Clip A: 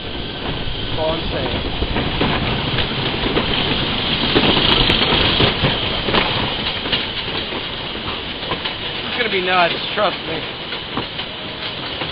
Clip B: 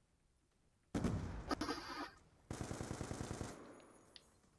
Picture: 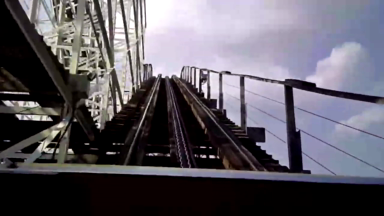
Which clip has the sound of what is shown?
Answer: A